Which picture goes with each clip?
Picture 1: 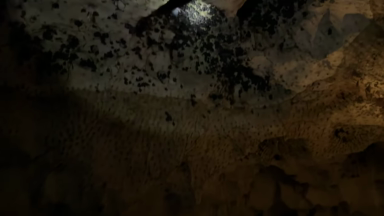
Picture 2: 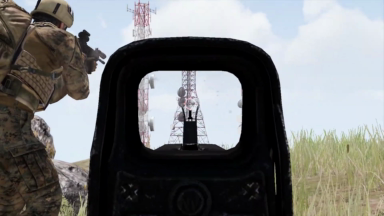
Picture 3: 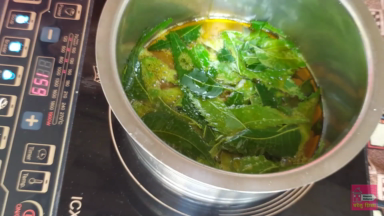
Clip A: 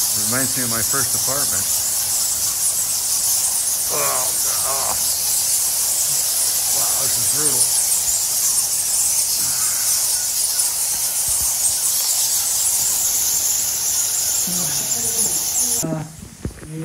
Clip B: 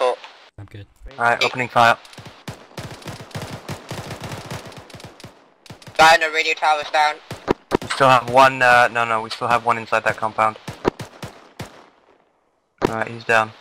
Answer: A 1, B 2